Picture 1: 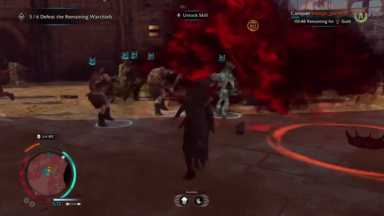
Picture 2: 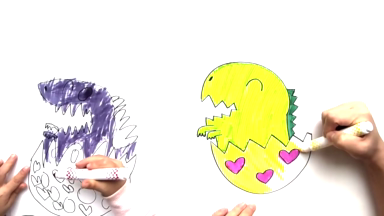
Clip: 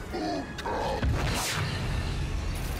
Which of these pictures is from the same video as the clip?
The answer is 1